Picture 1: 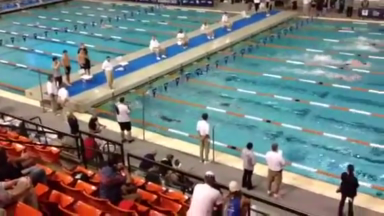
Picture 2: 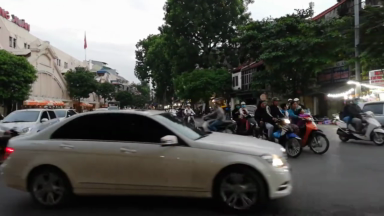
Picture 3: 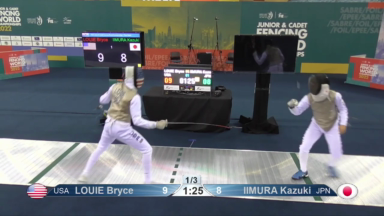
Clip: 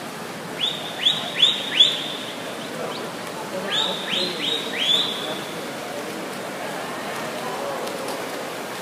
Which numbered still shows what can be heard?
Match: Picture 1